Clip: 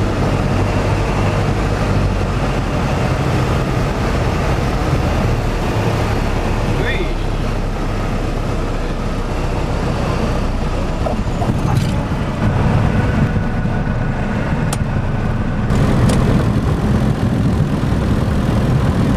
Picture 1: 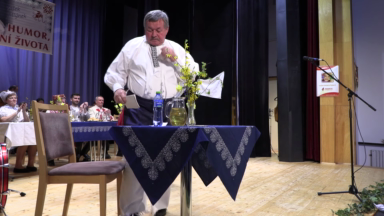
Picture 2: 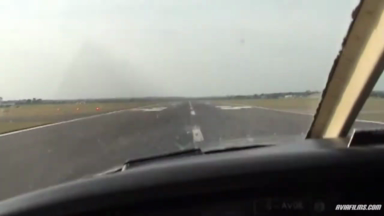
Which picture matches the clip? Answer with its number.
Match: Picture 2